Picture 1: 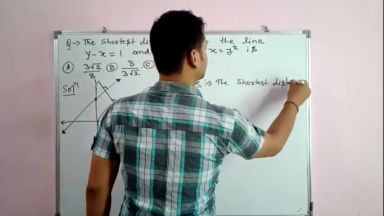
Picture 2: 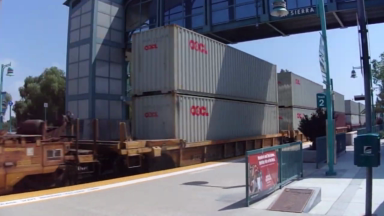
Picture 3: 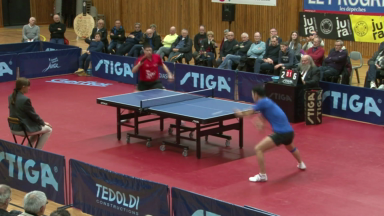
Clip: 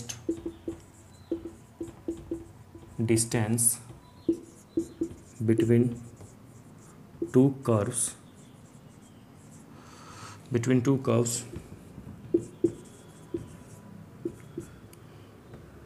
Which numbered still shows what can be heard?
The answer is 1